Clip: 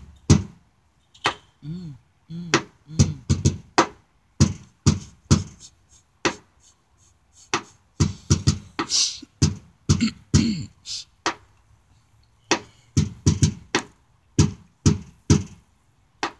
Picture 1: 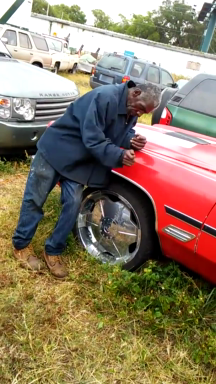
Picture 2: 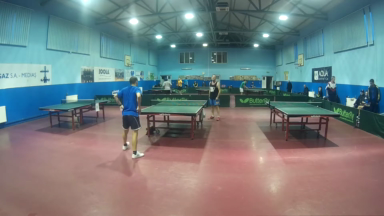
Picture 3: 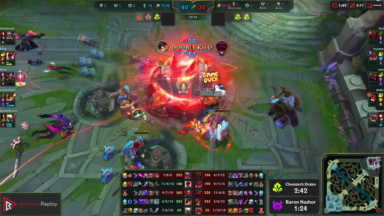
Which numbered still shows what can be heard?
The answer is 1